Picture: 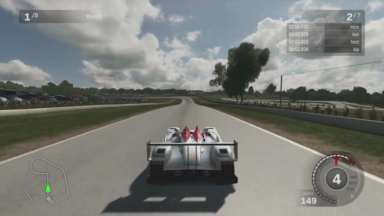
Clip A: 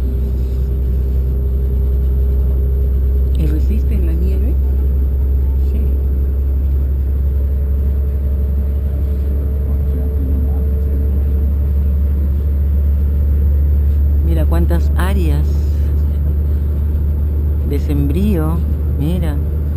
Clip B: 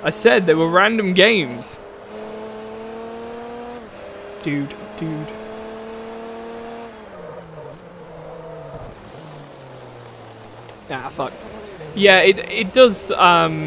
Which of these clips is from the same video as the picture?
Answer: B